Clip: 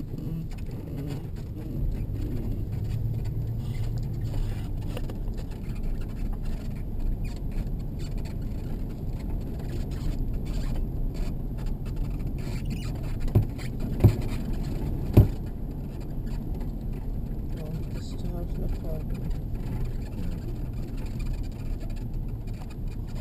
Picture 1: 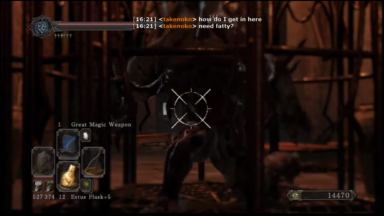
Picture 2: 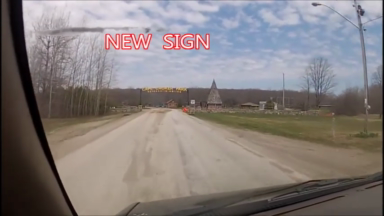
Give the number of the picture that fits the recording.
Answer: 2